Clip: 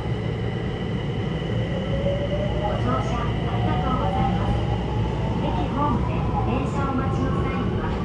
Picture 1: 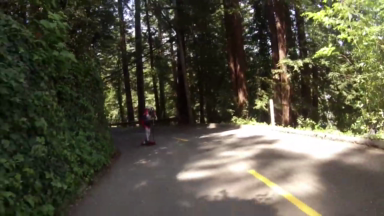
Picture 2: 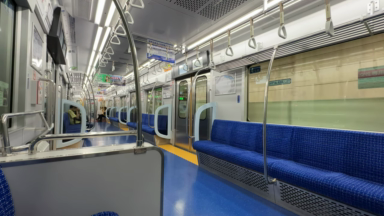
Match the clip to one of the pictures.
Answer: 2